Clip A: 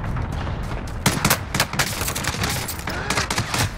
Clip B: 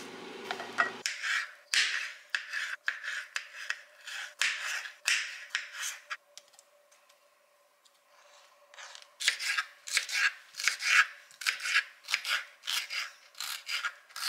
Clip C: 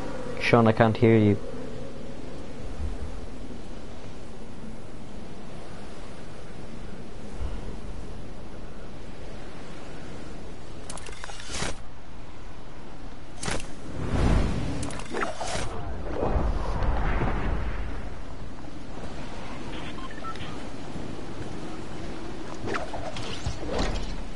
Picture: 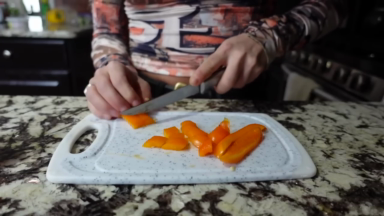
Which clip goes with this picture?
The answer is B